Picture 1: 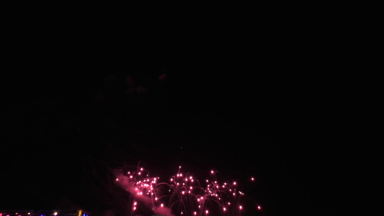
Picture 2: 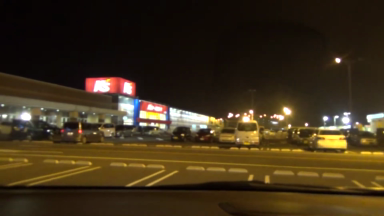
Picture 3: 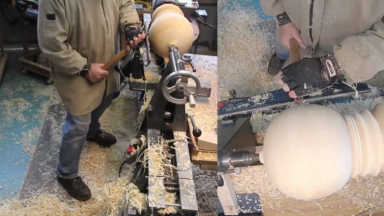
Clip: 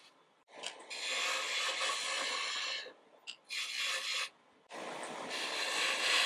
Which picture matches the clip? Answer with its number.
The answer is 3